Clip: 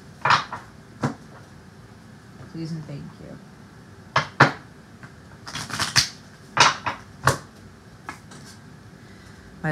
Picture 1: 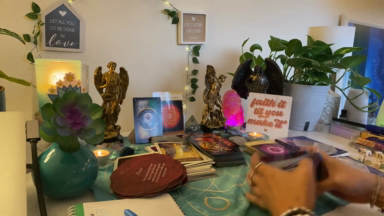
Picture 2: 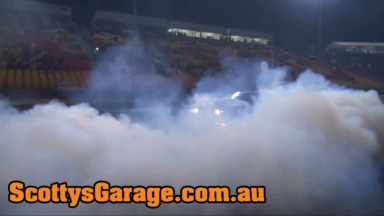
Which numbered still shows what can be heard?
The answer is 1